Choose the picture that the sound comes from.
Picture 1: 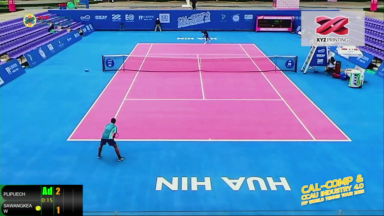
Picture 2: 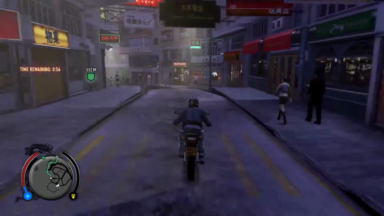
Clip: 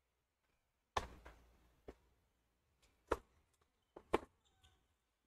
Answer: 1